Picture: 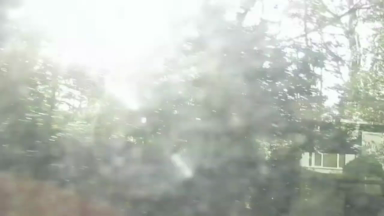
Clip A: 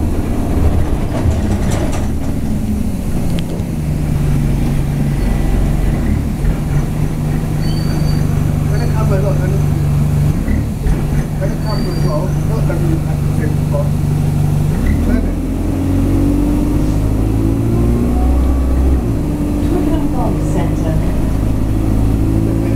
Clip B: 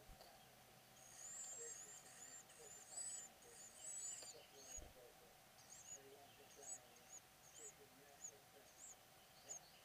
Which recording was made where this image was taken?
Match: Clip A